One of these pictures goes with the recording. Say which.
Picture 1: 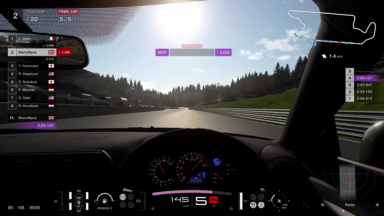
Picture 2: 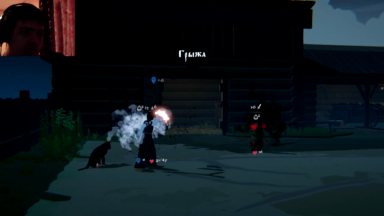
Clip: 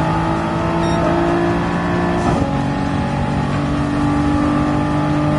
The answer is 1